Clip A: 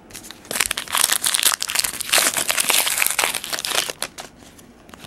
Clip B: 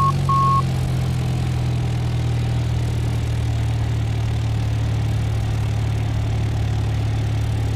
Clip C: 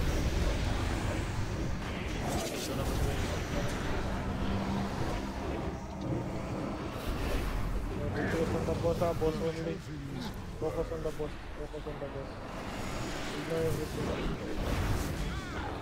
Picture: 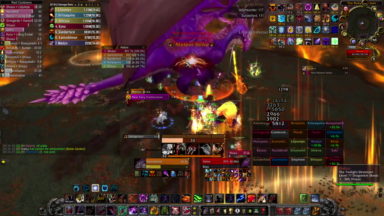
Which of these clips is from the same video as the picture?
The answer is C